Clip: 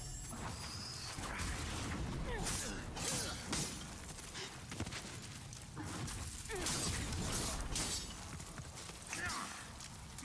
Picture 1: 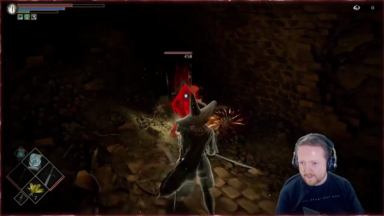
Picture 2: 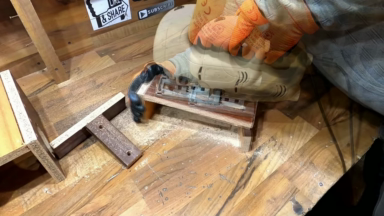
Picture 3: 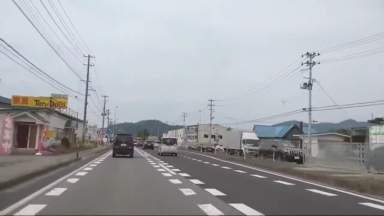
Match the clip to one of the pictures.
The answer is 1